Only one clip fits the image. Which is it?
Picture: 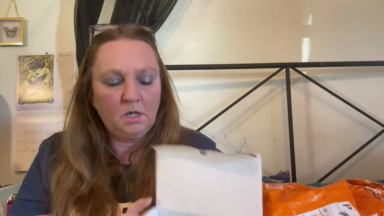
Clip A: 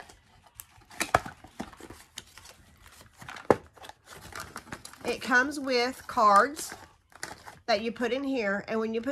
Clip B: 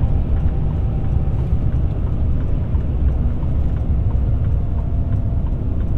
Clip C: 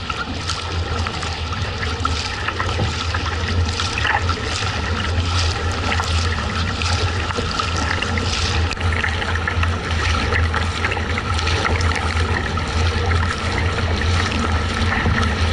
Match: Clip A